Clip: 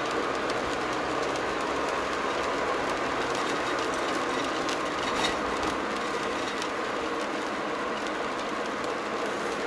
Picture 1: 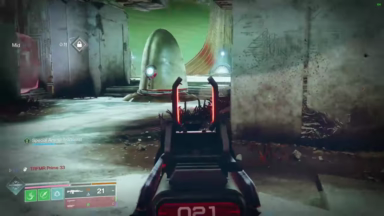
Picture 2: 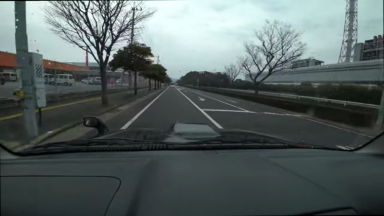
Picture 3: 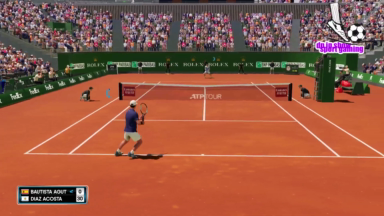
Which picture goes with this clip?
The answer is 2